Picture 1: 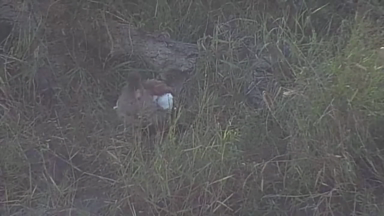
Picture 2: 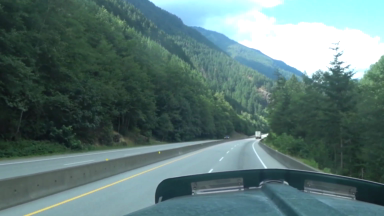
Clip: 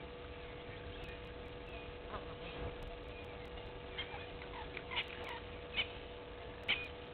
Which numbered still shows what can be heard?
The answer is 1